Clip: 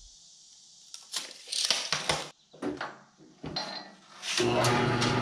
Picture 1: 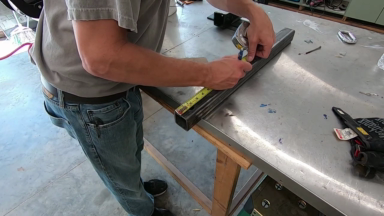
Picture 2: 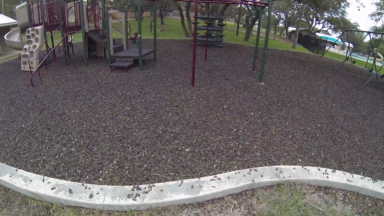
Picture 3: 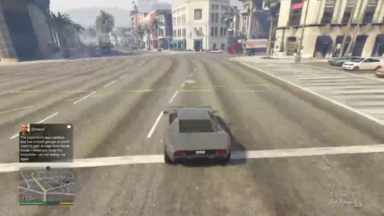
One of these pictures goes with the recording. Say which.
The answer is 1